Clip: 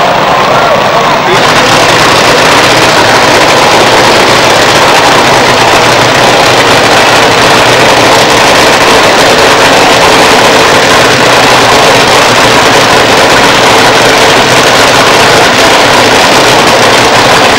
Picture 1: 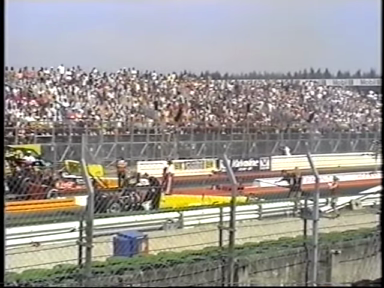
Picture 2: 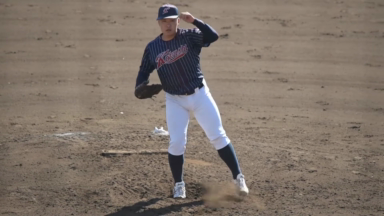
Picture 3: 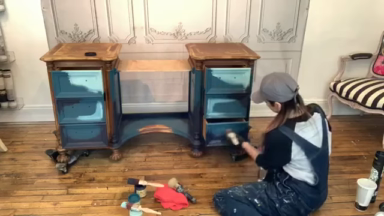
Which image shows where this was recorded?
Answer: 1